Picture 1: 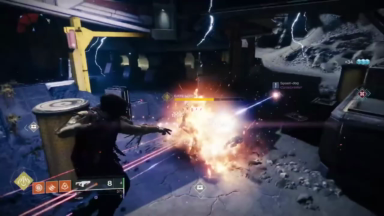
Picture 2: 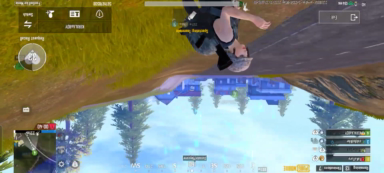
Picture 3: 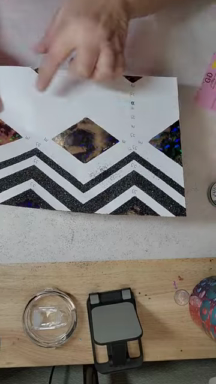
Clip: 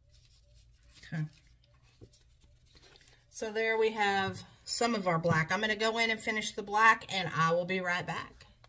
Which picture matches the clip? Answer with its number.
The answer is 3